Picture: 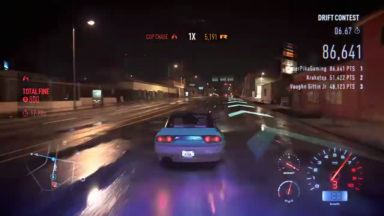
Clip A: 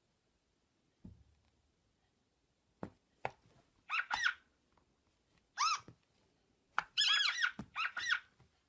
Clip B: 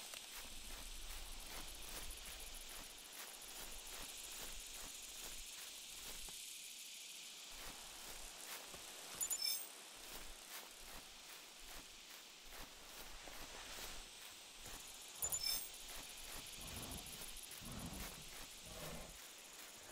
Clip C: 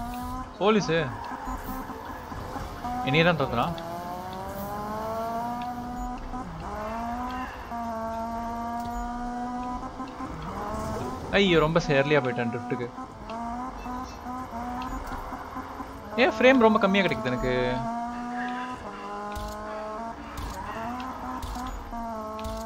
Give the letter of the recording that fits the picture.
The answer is C